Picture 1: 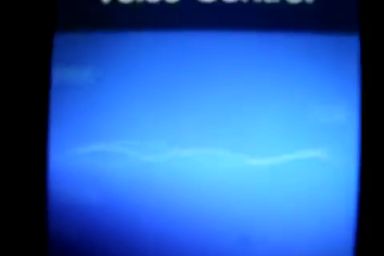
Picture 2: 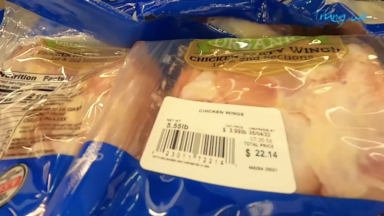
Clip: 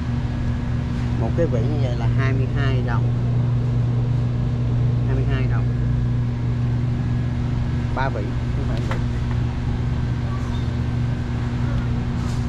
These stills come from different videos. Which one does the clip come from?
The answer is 2